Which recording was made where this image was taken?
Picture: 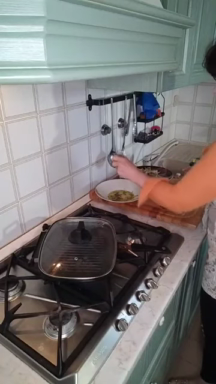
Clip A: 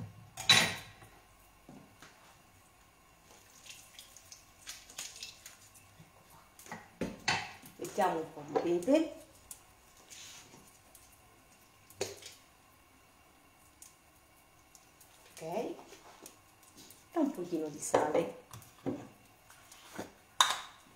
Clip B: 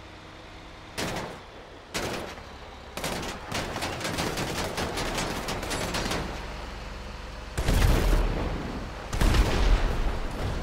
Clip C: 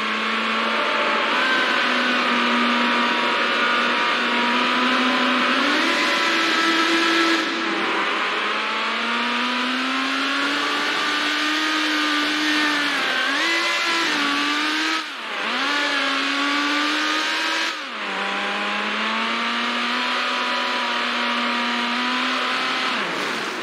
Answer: A